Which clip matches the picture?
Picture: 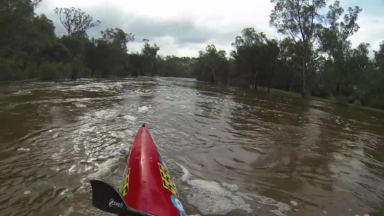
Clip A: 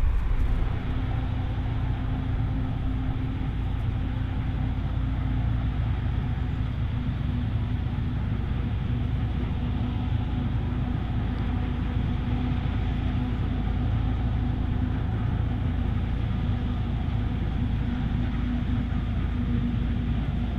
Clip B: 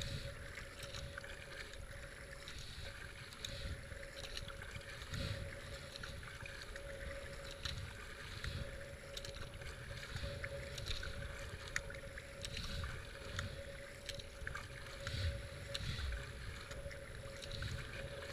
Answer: B